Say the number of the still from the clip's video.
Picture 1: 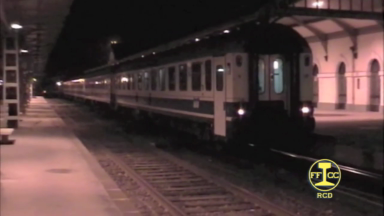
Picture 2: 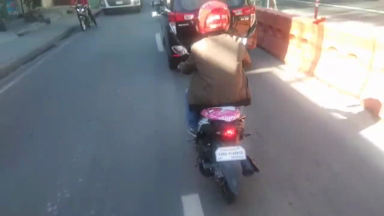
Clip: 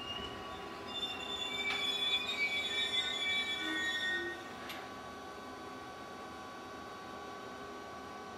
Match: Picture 1